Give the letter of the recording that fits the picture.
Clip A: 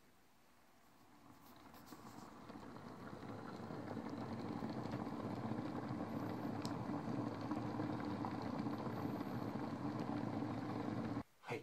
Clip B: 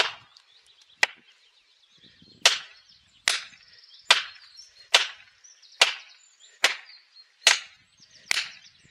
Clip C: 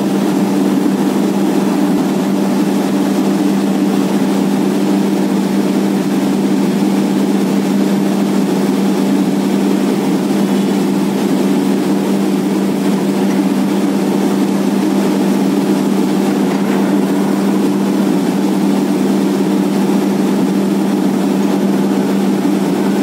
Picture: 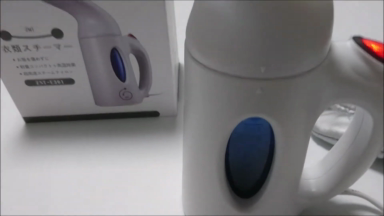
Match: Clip A